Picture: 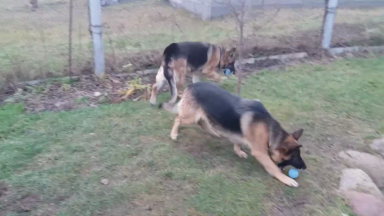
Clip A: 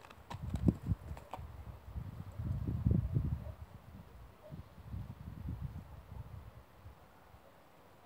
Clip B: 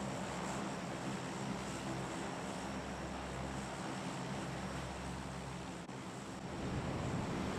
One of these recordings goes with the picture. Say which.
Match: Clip A